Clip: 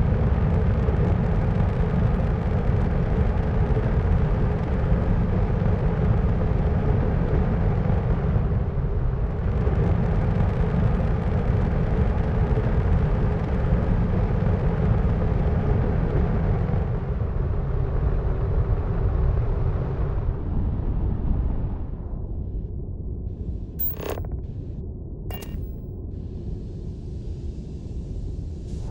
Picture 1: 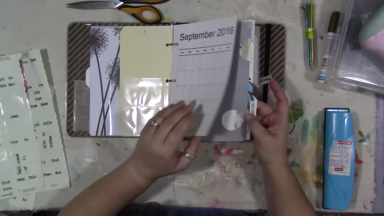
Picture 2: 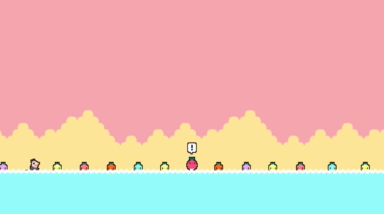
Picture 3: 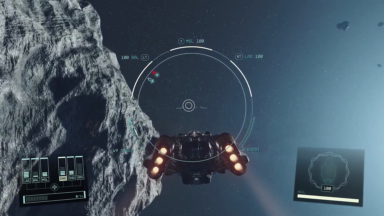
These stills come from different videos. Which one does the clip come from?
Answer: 3